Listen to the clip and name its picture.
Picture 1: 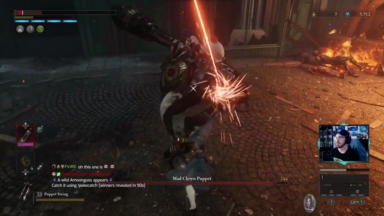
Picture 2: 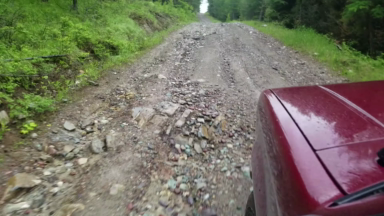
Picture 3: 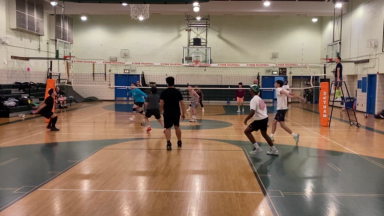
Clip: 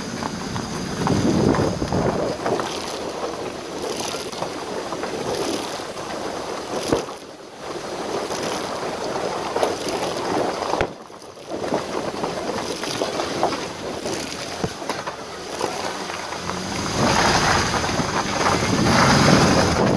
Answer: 2